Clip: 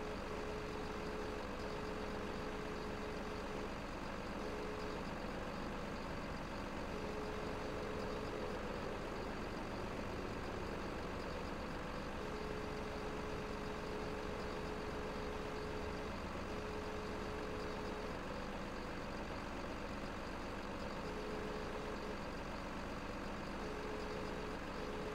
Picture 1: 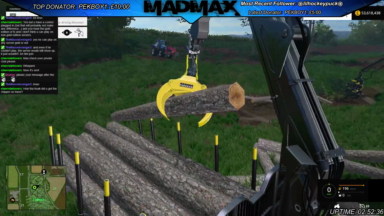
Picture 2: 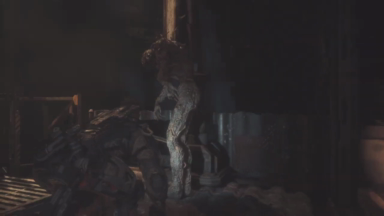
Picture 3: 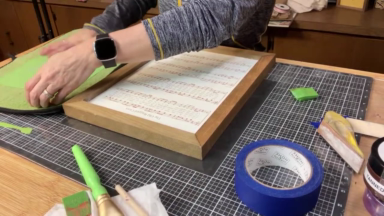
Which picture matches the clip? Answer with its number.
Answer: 1